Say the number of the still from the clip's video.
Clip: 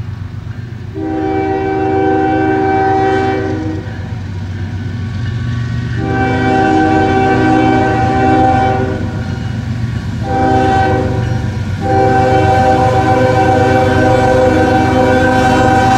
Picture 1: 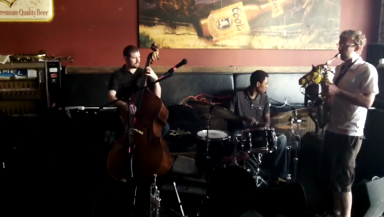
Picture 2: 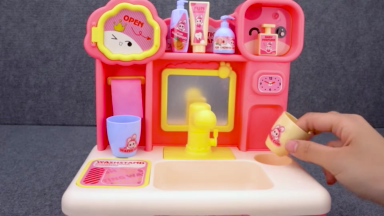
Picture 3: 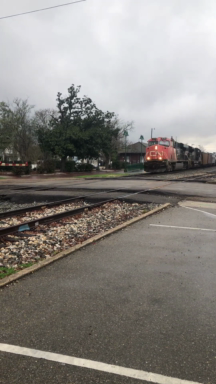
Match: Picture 3